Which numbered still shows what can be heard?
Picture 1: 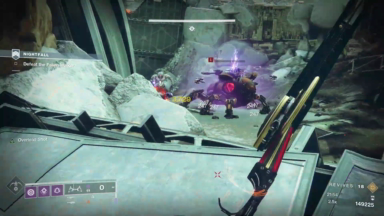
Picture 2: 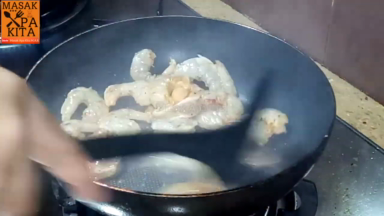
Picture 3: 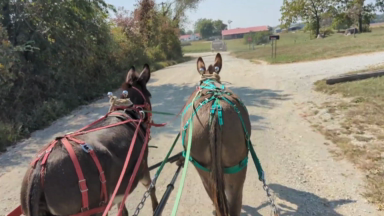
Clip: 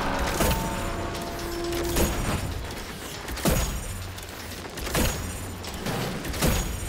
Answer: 1